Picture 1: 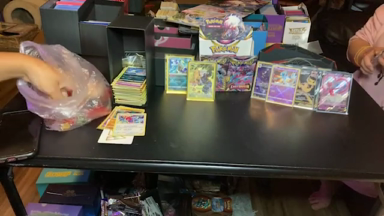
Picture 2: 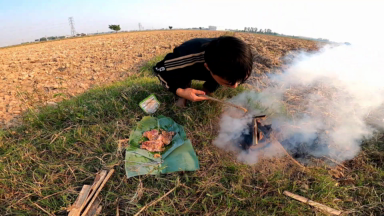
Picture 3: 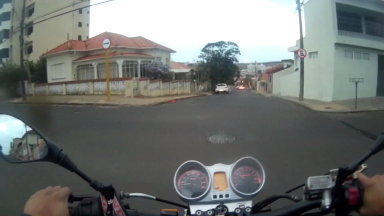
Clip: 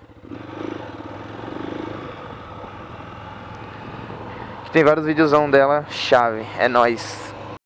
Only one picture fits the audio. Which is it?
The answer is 3